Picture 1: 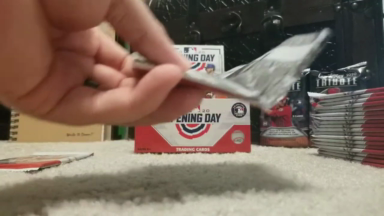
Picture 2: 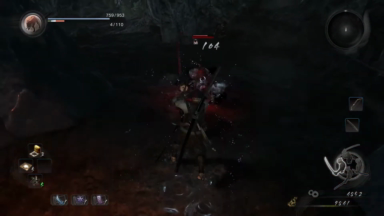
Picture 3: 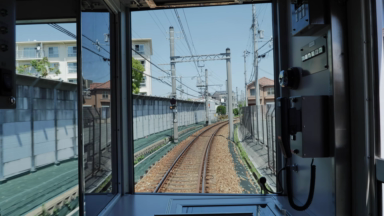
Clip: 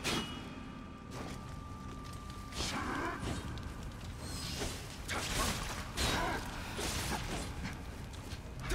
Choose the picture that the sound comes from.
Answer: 2